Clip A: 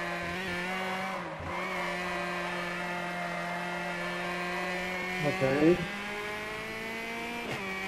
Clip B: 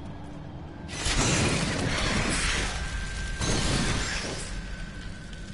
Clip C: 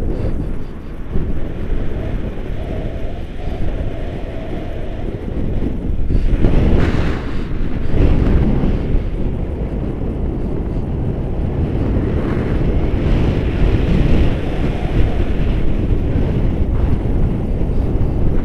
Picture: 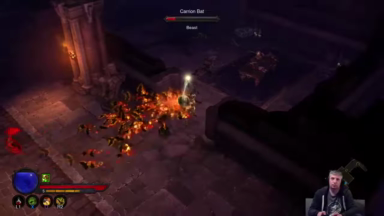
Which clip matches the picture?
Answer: B